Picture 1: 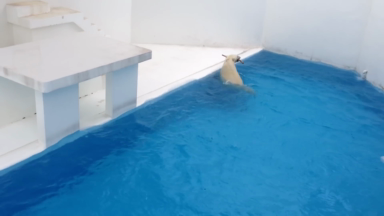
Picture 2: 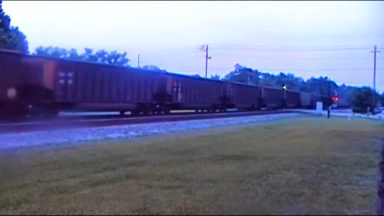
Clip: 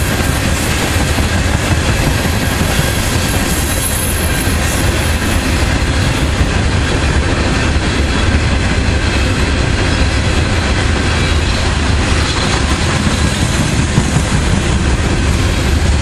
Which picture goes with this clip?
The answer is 2